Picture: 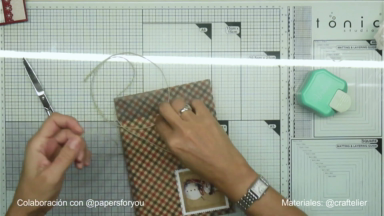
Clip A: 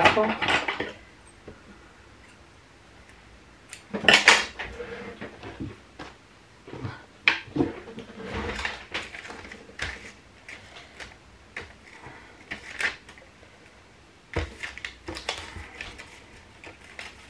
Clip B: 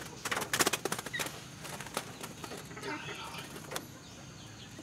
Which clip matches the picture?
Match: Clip A